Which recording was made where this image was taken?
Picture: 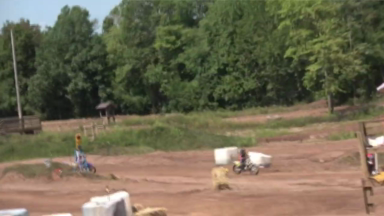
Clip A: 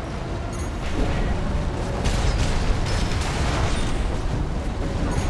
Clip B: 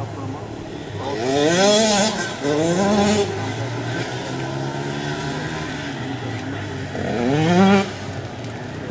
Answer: B